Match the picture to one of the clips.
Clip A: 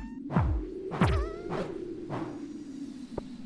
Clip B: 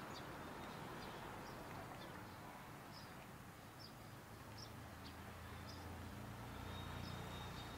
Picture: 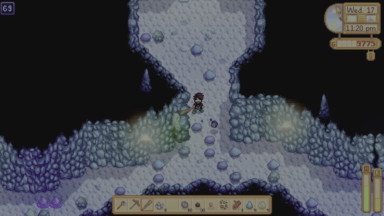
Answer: A